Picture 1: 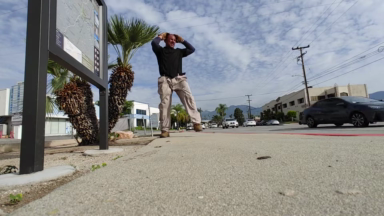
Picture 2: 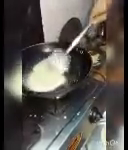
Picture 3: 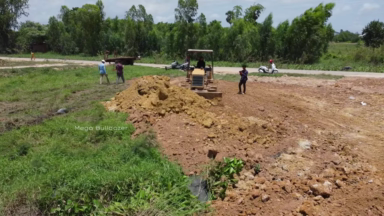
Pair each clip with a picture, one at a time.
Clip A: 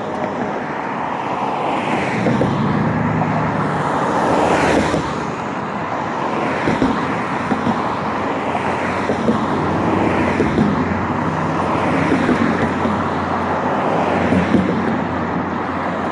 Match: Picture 1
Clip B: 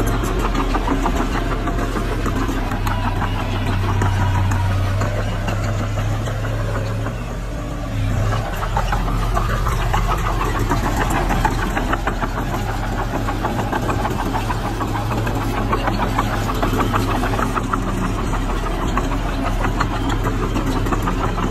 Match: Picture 3